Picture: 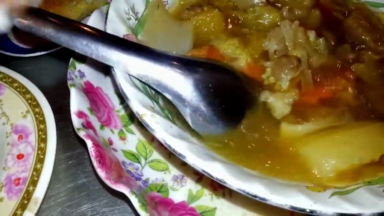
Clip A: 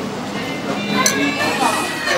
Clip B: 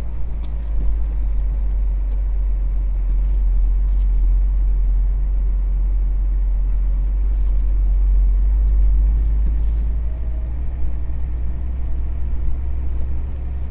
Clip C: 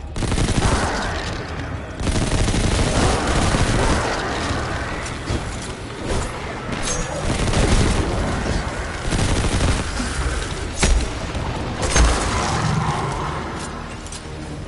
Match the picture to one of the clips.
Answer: A